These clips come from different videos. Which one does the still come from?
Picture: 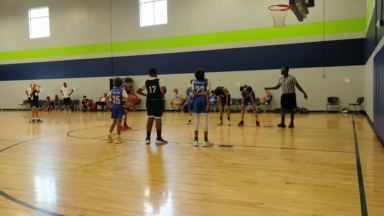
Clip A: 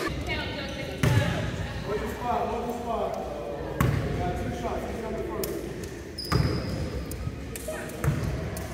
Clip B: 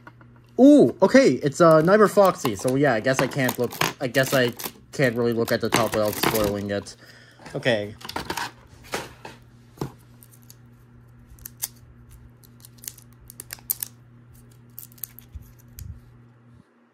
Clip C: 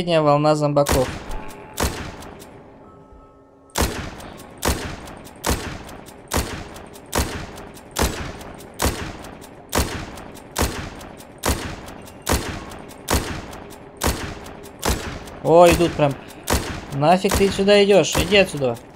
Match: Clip A